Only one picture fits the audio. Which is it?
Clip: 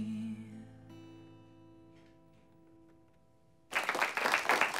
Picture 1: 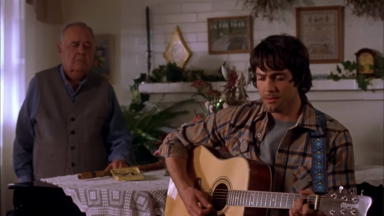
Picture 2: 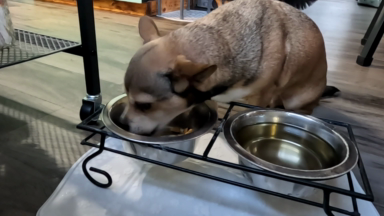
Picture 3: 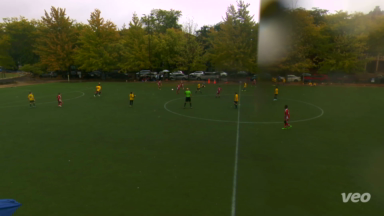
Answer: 1